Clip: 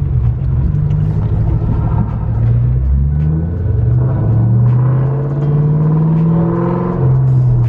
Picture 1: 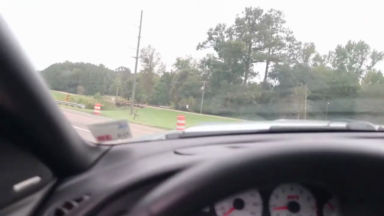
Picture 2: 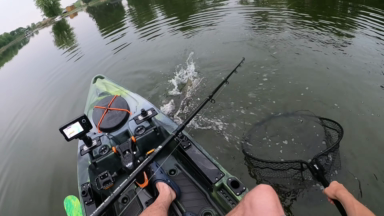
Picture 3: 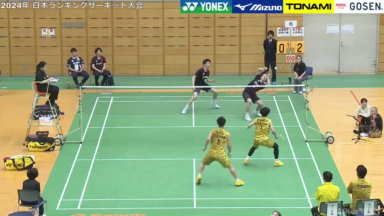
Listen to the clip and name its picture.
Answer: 1